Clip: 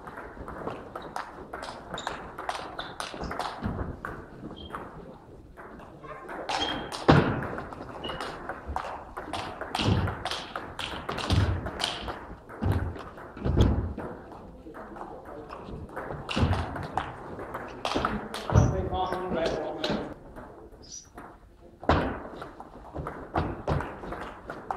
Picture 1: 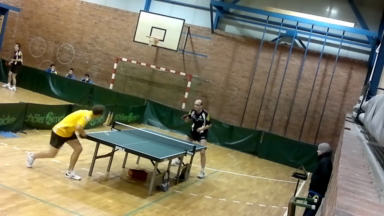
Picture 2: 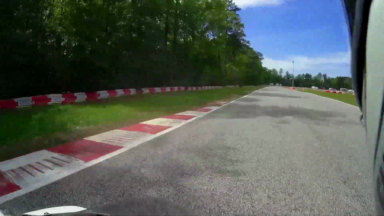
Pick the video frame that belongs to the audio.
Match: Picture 1